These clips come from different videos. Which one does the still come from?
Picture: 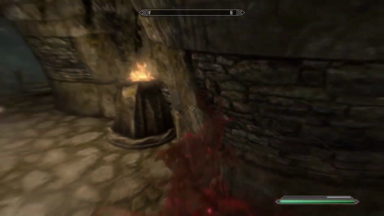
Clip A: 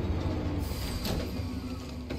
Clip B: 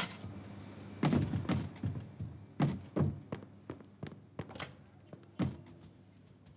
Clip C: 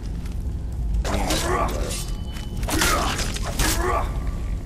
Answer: C